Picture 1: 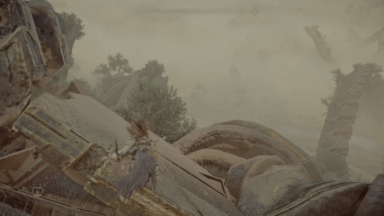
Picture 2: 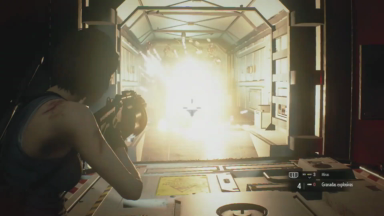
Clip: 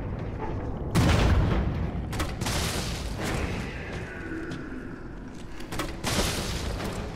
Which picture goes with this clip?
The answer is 2